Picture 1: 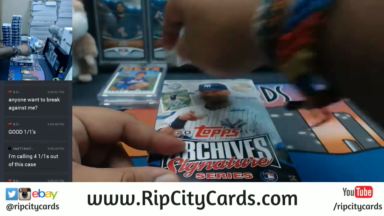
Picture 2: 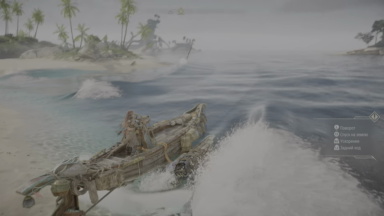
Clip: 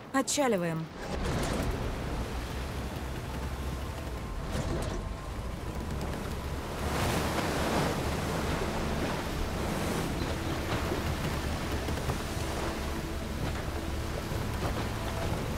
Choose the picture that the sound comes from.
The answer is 2